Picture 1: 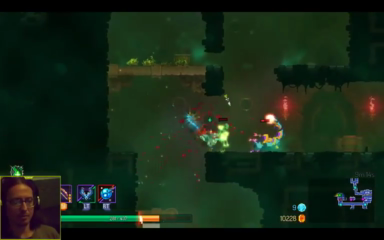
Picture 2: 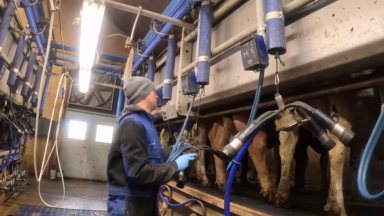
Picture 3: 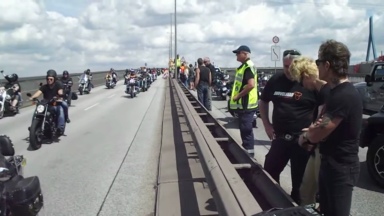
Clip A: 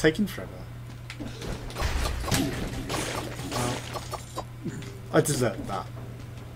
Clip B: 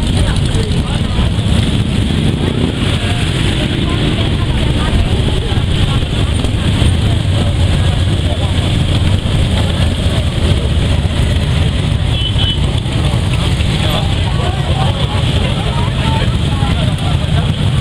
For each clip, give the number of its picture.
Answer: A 1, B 3